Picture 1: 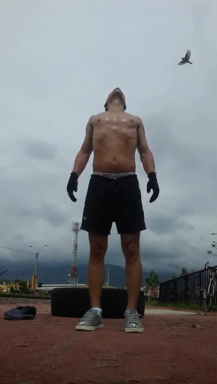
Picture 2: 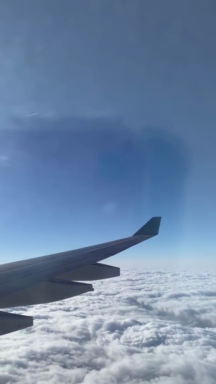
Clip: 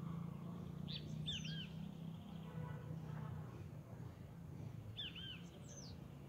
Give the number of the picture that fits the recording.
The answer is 1